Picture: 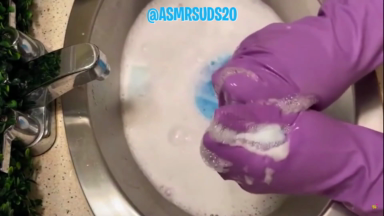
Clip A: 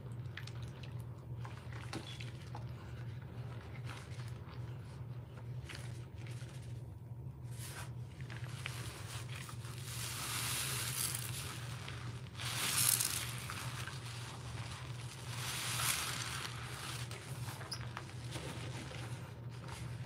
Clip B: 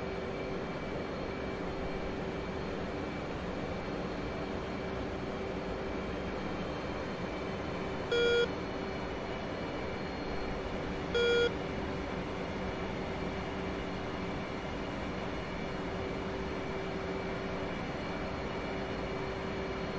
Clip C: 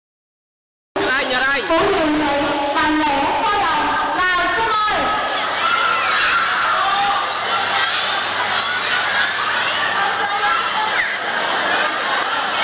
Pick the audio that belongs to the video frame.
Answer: A